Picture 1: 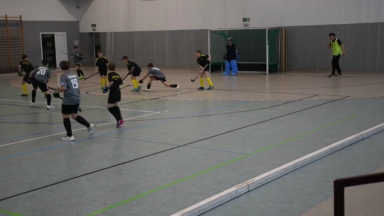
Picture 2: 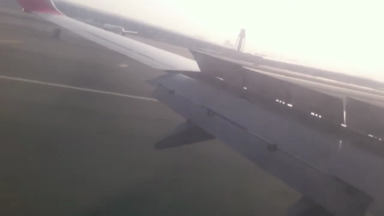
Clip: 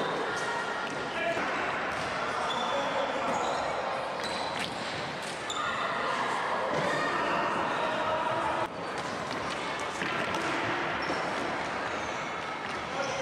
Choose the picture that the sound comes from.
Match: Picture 1